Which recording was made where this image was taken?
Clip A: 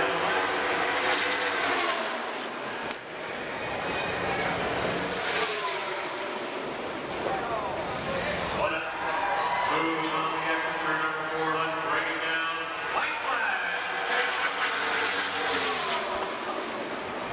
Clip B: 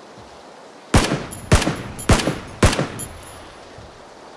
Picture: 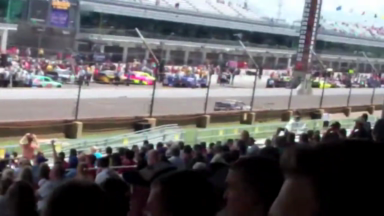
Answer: A